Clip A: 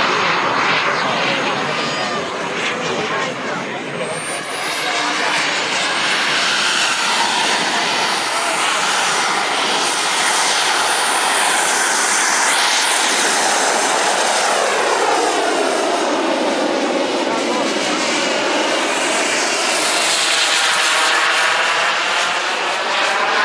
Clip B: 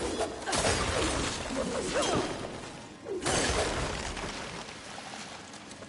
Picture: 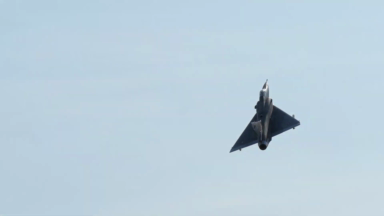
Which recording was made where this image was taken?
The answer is A